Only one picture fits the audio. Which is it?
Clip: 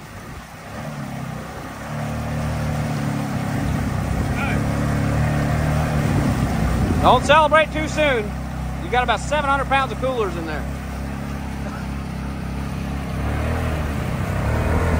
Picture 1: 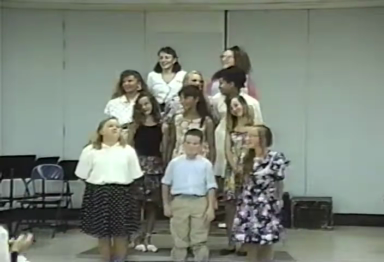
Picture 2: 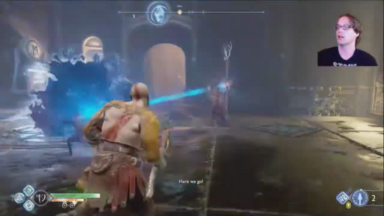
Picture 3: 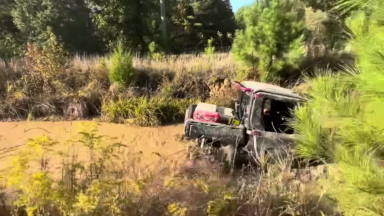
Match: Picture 3